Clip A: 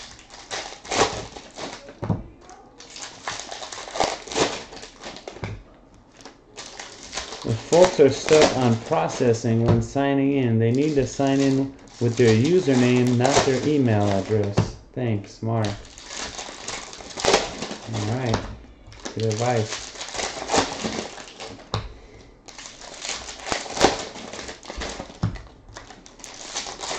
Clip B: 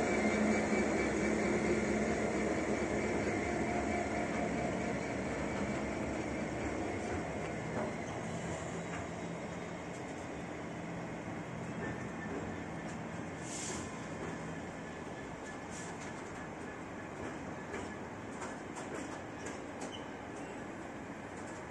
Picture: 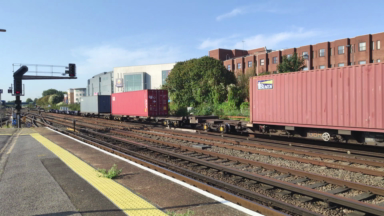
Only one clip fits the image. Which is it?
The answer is B